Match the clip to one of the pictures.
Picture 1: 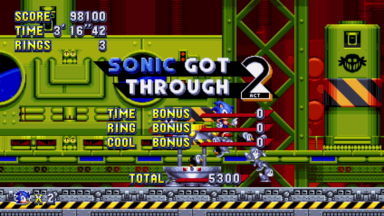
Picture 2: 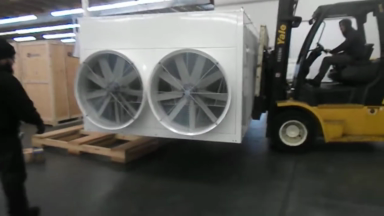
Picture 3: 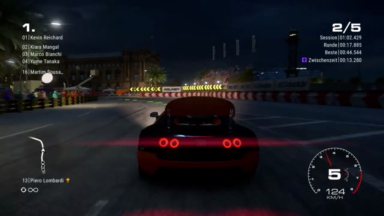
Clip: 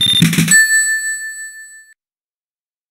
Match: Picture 1